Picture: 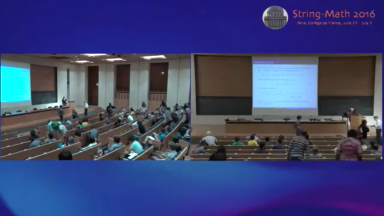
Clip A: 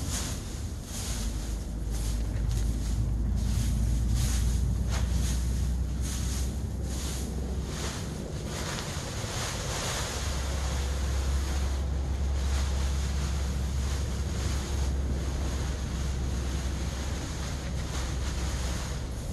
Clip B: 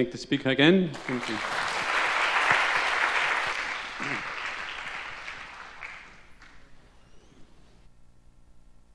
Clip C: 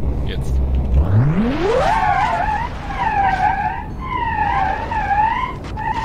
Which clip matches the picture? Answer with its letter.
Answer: B